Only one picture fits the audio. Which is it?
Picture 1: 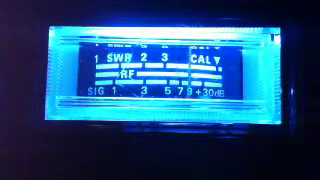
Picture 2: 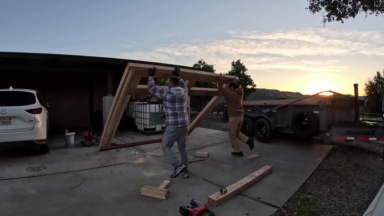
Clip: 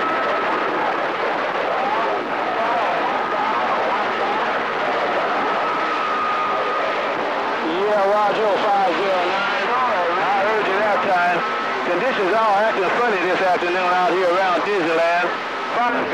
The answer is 1